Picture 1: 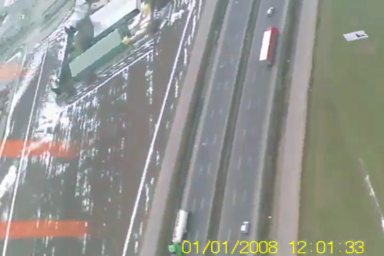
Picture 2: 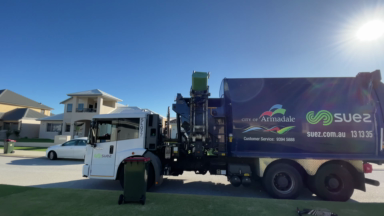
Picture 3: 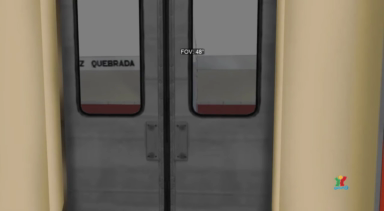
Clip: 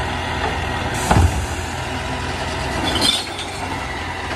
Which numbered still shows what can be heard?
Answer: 2